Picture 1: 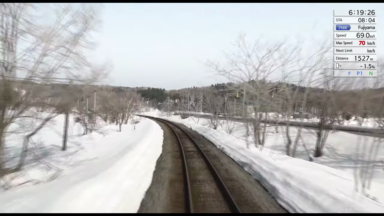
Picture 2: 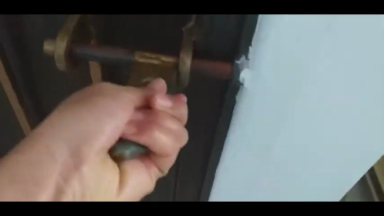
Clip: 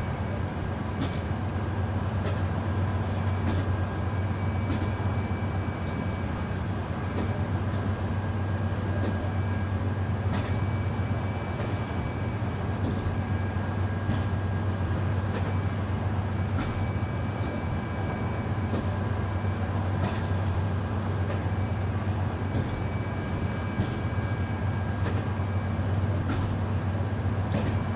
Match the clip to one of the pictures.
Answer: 1